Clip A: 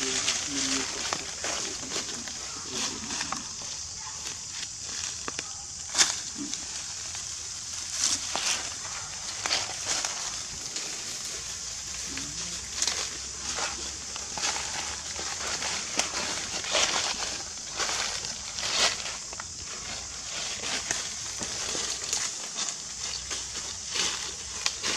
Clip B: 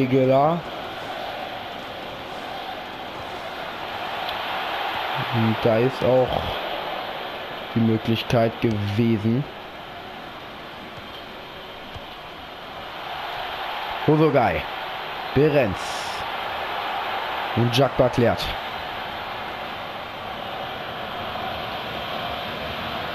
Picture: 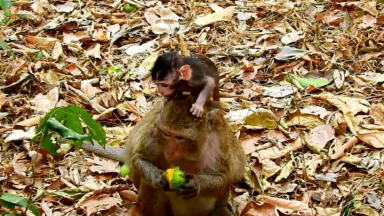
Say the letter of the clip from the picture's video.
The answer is A